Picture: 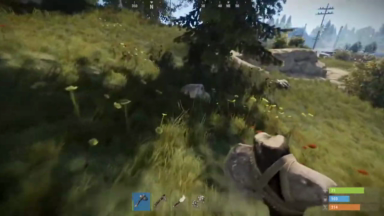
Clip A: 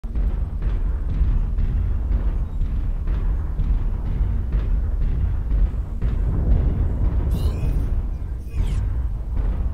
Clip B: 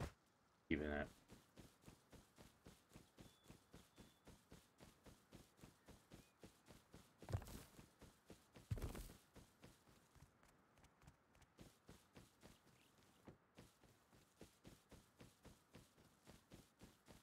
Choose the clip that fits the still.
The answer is B